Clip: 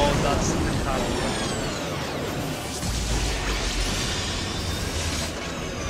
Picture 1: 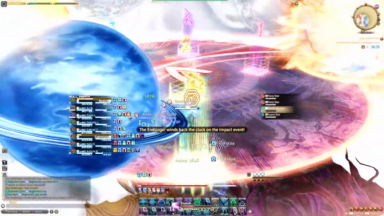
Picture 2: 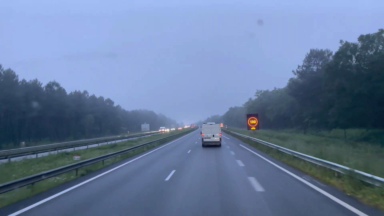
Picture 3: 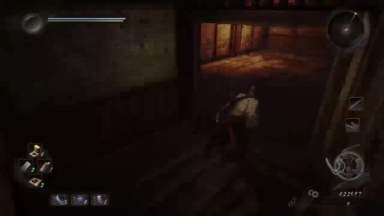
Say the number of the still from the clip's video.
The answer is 1